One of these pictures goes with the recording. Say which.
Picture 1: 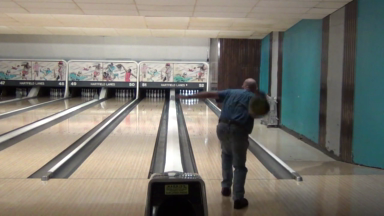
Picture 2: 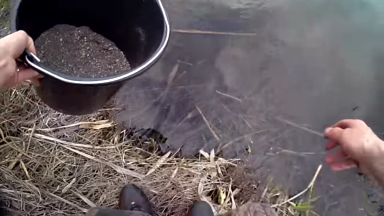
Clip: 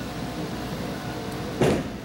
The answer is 1